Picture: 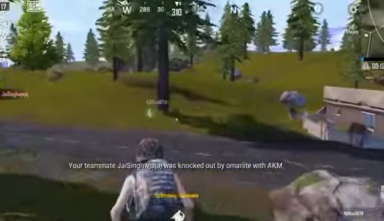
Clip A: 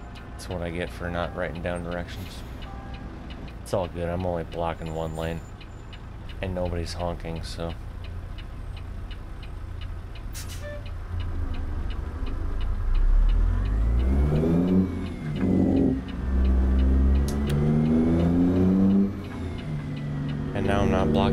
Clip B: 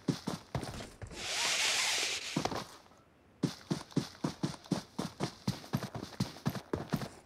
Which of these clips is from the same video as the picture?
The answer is B